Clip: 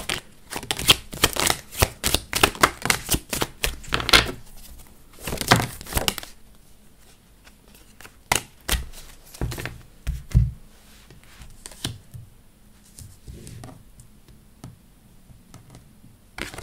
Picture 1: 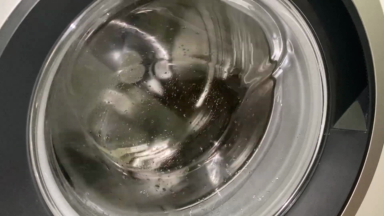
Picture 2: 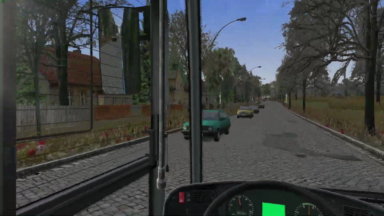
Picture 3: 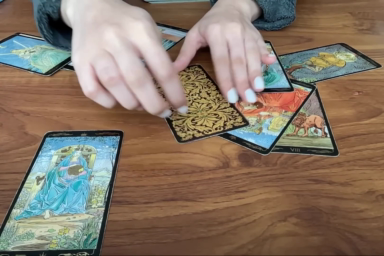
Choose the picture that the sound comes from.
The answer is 3